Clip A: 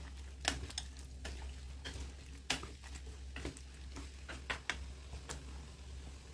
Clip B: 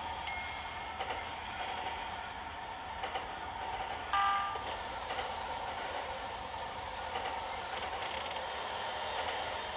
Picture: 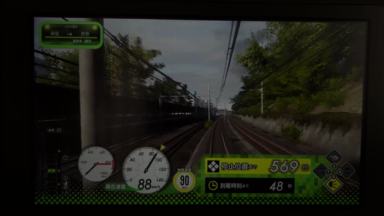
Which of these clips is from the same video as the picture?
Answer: B